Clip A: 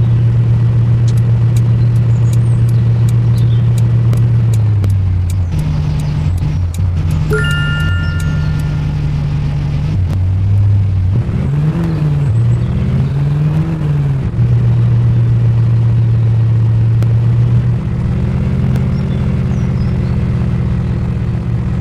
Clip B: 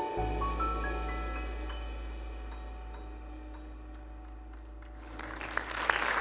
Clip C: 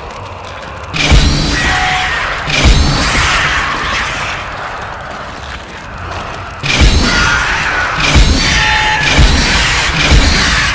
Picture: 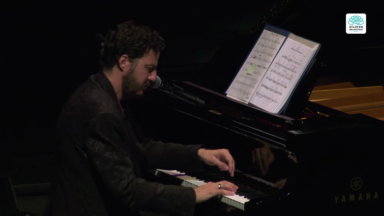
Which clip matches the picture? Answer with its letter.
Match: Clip B